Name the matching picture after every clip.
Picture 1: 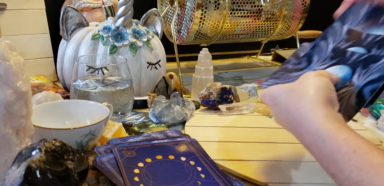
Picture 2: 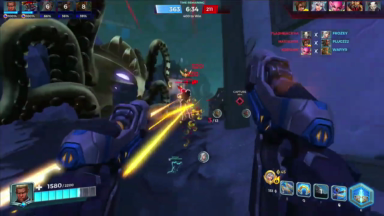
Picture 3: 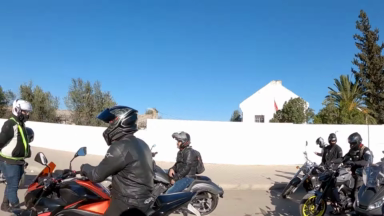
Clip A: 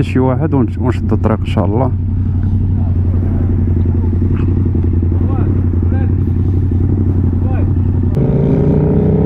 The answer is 3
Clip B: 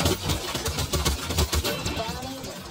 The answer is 2